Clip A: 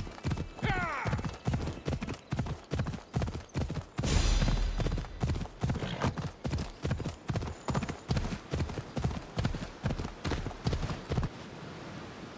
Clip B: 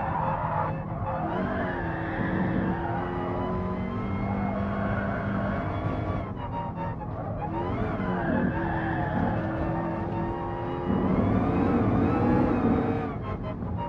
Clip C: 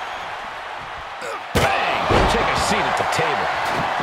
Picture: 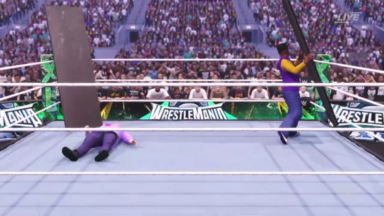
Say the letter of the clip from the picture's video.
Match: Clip C